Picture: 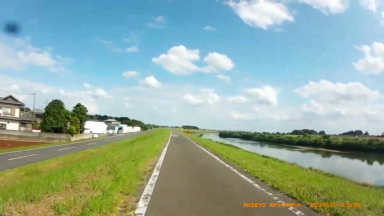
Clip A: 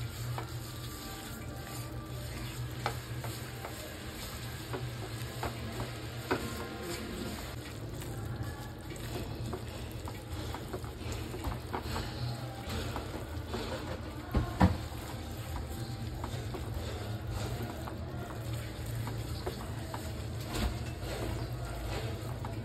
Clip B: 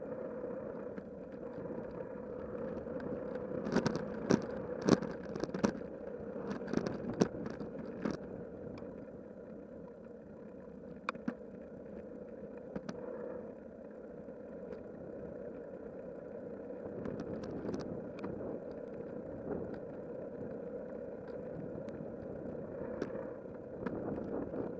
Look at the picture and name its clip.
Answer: B